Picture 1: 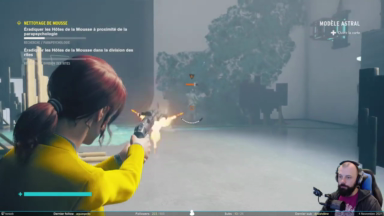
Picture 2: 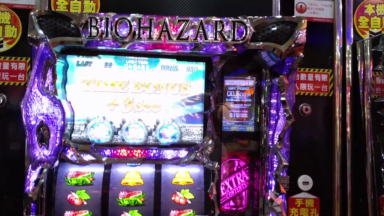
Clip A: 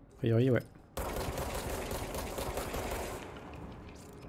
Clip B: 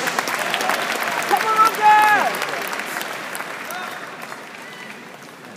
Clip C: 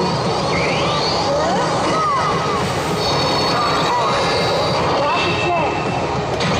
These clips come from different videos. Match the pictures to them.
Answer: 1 A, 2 C